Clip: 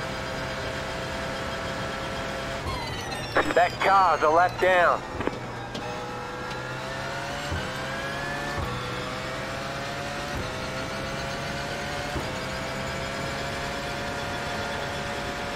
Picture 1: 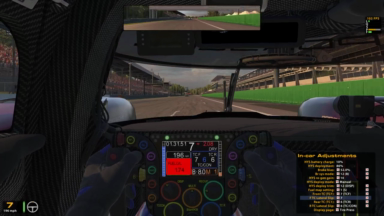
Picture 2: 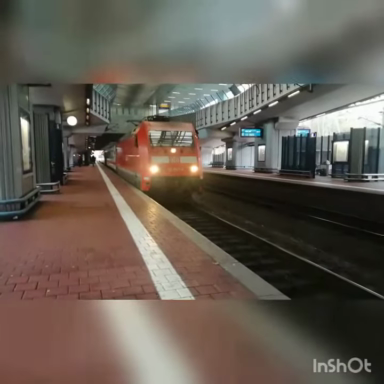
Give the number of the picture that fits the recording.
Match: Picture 1